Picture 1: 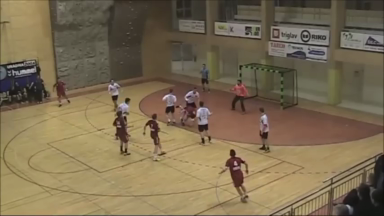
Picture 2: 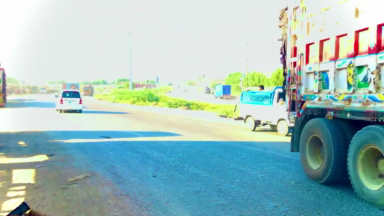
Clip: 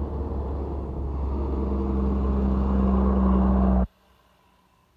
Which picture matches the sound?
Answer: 2